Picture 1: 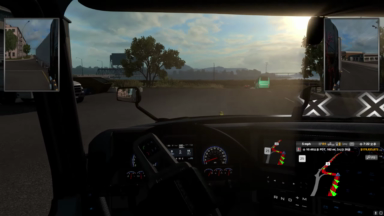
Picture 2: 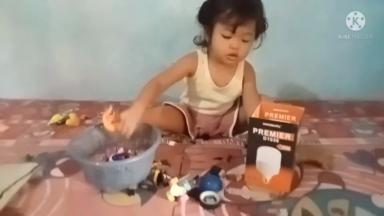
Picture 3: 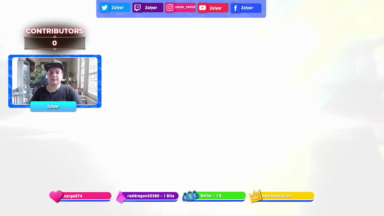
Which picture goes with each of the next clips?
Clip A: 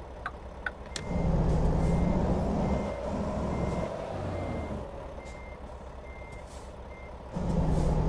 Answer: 1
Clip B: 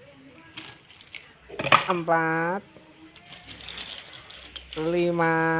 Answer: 2